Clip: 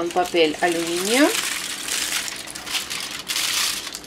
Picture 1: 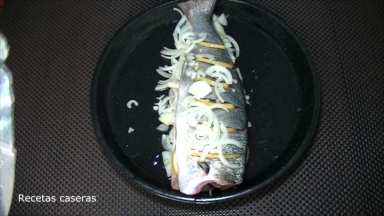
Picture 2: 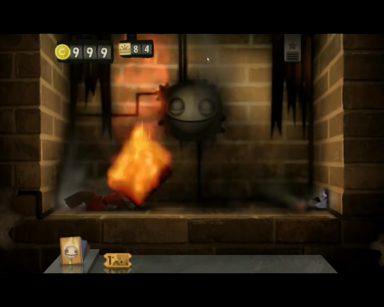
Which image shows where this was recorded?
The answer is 1